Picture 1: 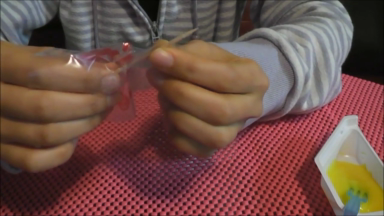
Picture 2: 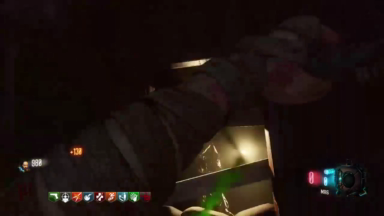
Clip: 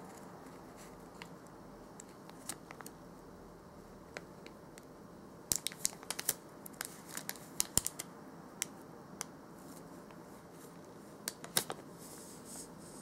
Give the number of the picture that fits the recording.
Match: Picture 1